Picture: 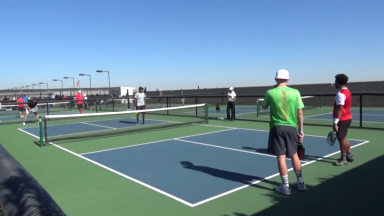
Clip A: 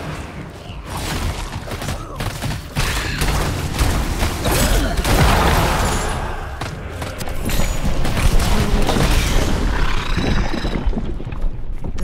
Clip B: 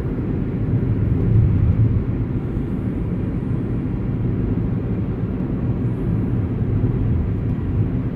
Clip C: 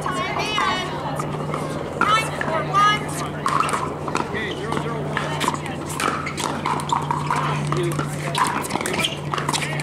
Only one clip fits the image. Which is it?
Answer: C